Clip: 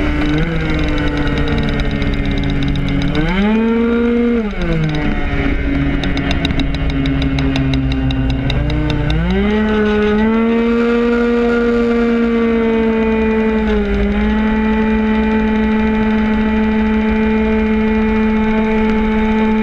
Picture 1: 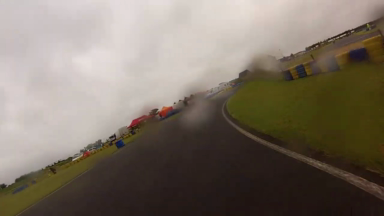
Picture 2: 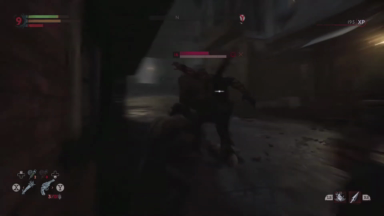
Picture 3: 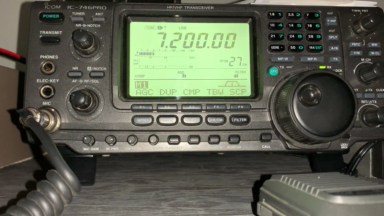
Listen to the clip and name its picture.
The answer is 1